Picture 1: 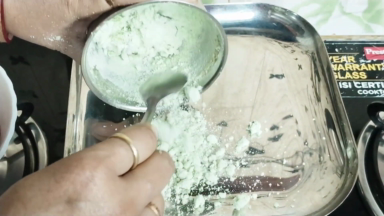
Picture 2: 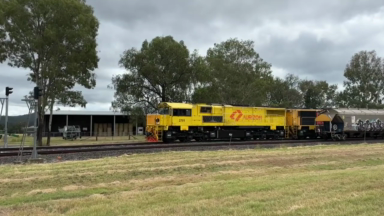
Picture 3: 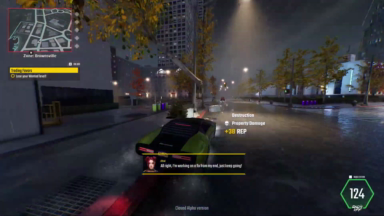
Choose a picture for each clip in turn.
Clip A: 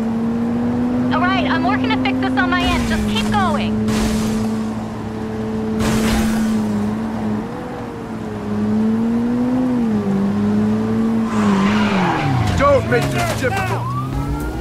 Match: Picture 3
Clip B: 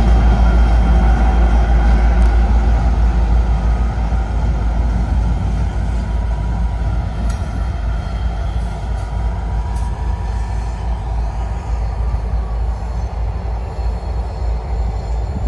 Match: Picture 2